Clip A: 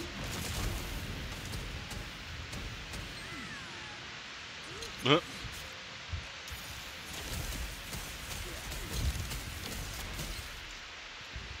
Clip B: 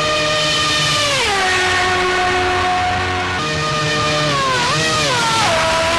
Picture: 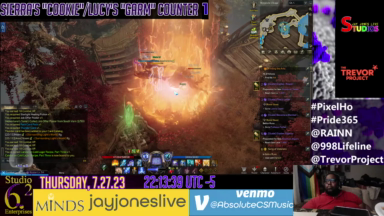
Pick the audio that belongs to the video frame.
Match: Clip A